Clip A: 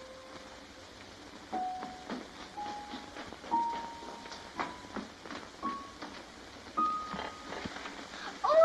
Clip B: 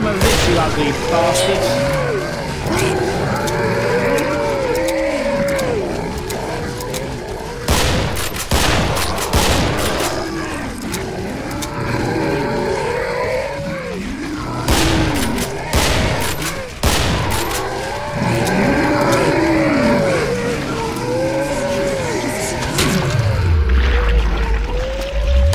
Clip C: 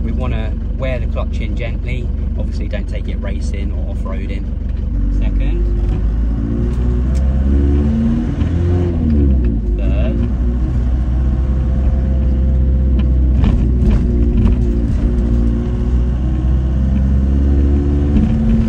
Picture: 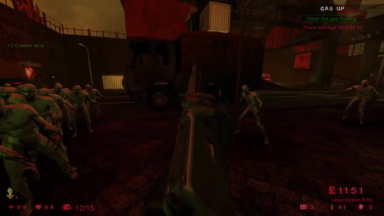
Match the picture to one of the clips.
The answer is B